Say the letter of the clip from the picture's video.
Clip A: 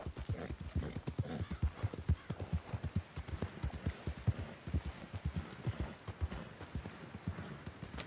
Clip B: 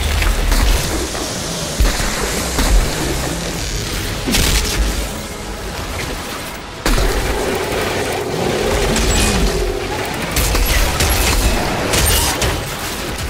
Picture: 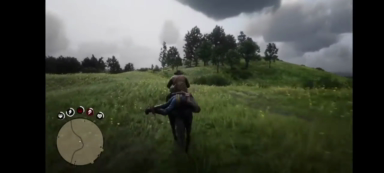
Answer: A